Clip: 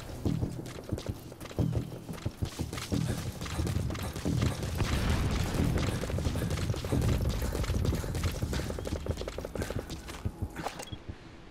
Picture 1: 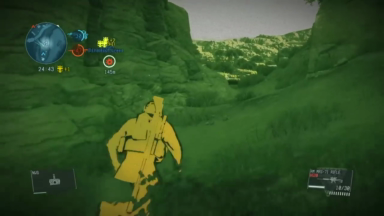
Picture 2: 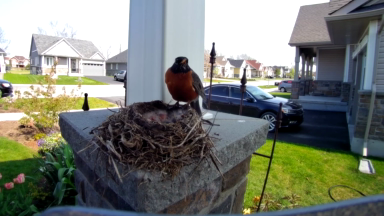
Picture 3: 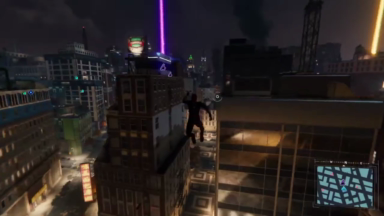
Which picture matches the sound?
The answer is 1